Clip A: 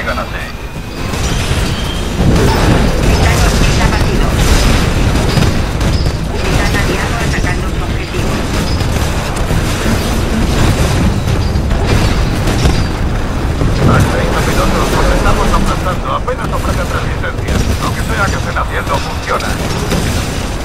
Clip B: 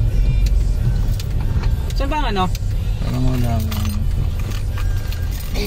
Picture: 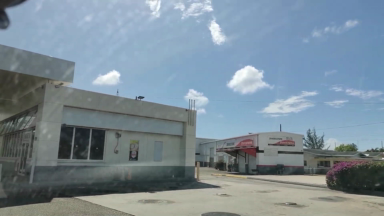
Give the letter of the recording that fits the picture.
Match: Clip B